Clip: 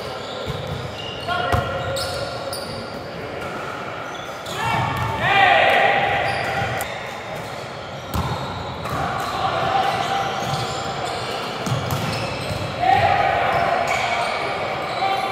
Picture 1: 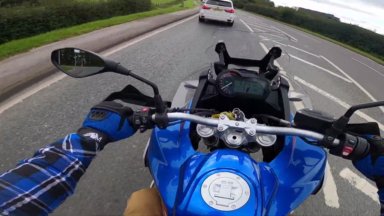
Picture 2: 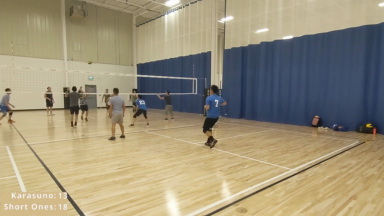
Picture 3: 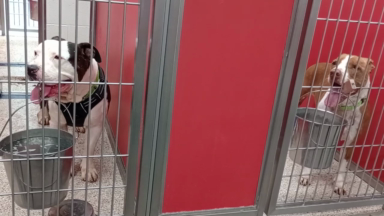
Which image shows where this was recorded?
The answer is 2